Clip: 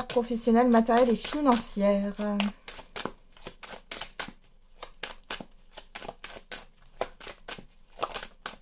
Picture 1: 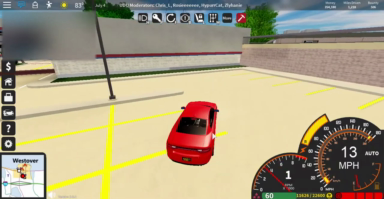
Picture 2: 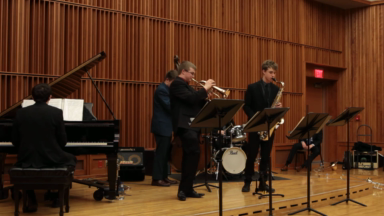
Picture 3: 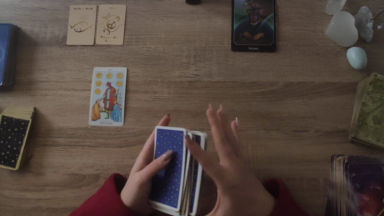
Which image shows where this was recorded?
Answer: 3